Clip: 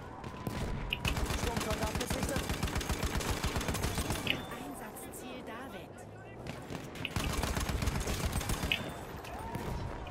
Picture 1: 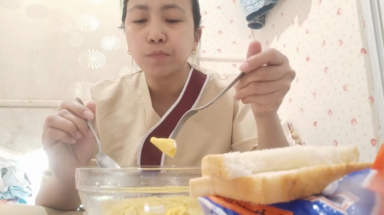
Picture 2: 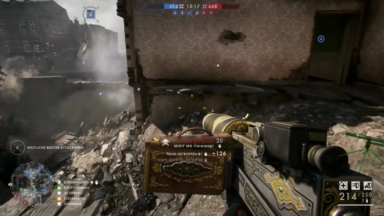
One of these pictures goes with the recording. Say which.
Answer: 2